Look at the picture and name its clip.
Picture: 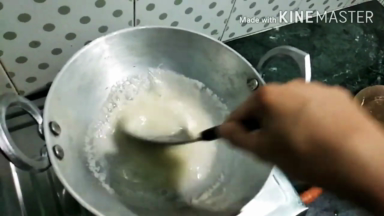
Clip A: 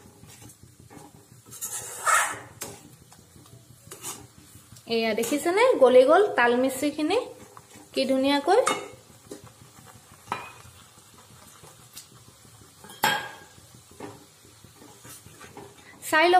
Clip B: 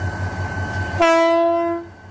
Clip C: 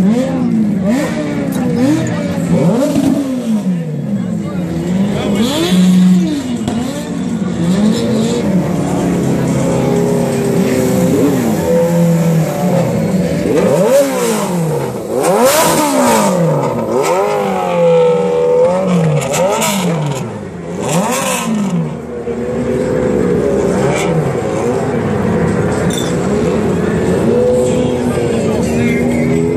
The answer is A